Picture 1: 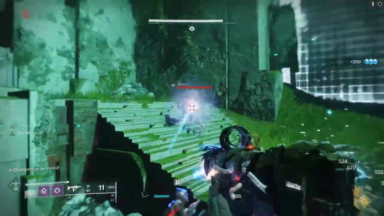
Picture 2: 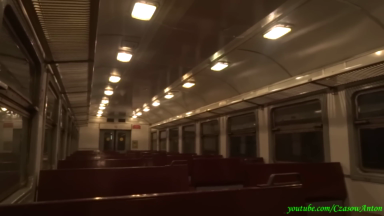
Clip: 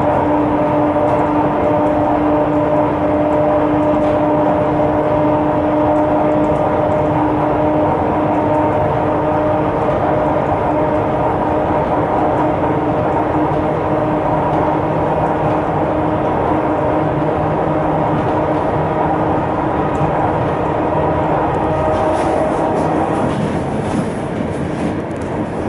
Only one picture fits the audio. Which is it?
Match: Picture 2